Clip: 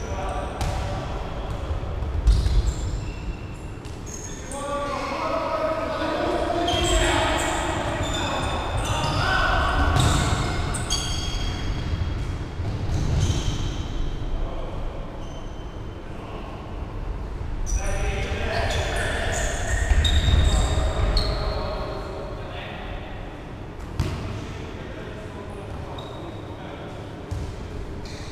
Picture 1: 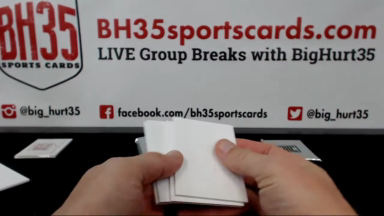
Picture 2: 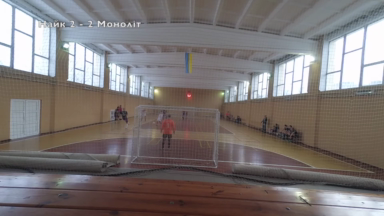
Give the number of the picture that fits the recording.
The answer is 2